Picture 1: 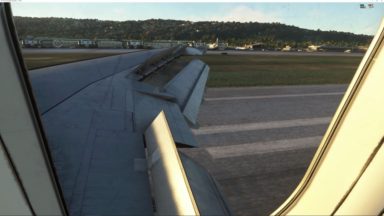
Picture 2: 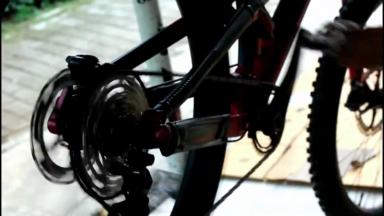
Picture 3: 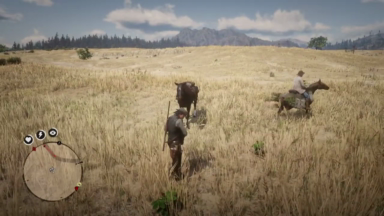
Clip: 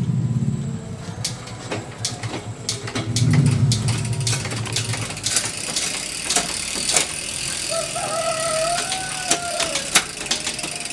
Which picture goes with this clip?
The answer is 2